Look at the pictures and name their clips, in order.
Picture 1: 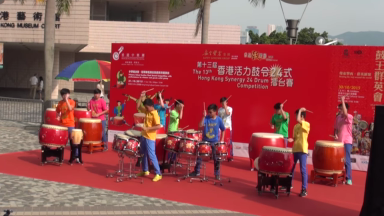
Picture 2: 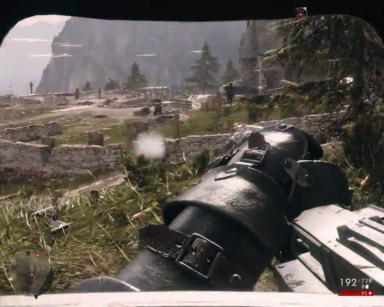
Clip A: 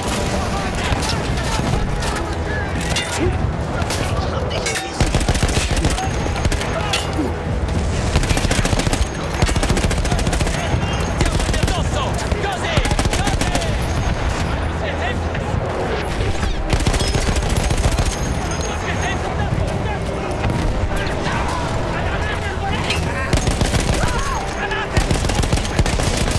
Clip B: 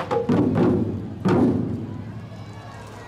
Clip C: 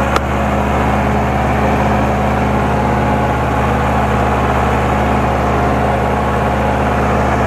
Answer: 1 B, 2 A